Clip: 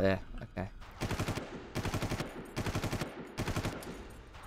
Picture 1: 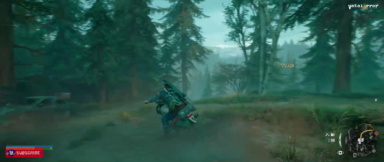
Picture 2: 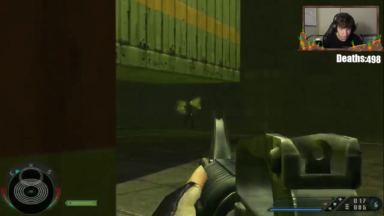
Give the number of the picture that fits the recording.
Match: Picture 2